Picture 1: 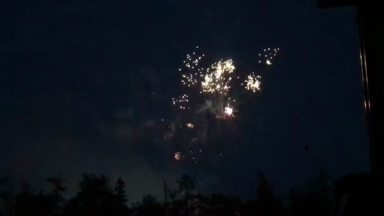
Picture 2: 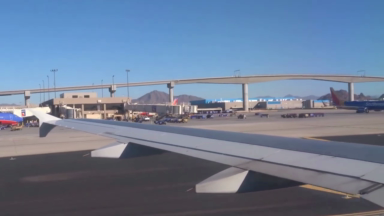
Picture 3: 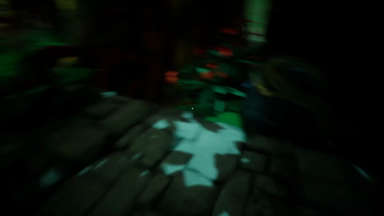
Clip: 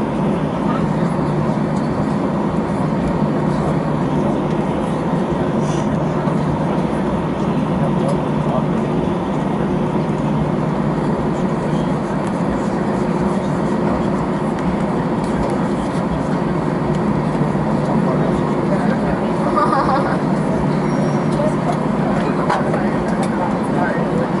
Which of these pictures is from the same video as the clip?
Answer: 2